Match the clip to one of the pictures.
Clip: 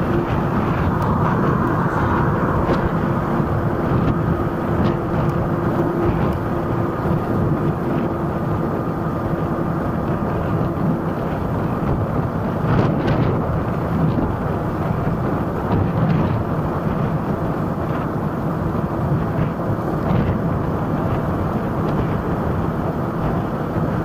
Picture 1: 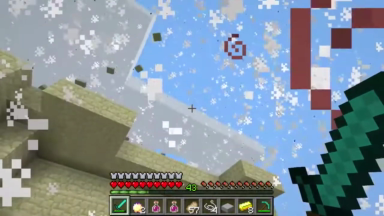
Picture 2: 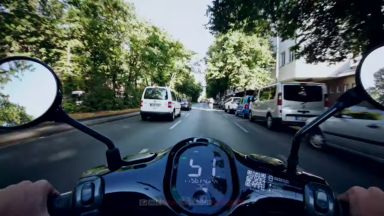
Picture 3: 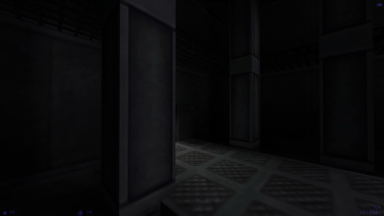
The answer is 2